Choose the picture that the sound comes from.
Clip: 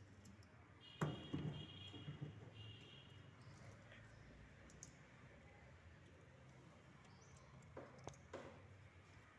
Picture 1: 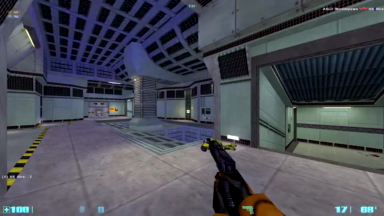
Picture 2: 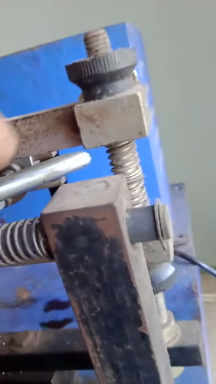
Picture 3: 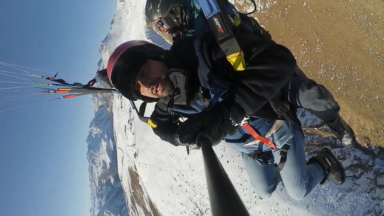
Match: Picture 2